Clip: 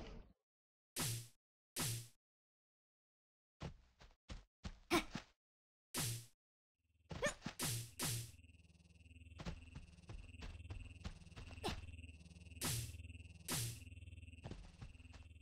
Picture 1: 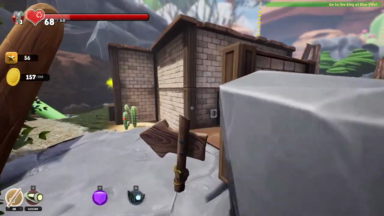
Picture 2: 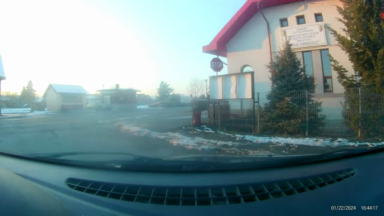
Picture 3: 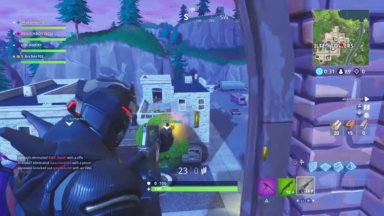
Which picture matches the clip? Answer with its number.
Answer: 1